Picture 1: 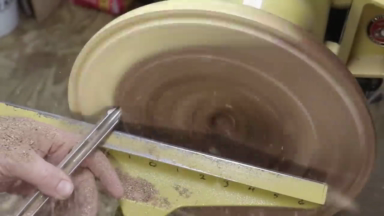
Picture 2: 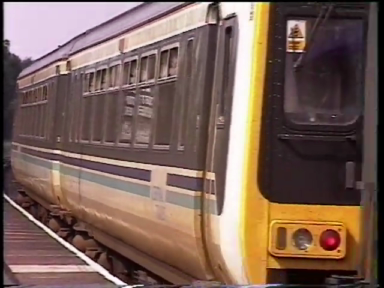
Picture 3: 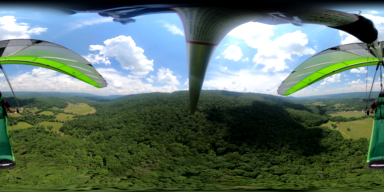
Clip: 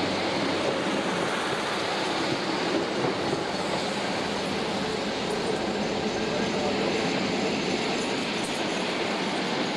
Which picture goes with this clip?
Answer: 2